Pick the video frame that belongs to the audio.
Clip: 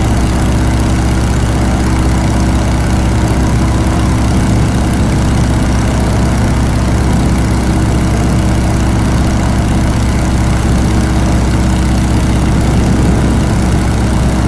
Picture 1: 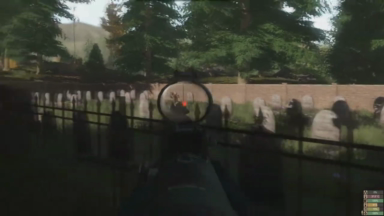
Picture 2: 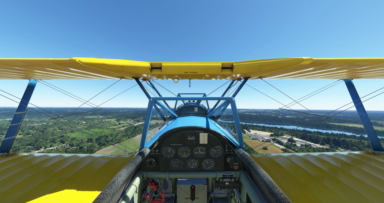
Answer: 2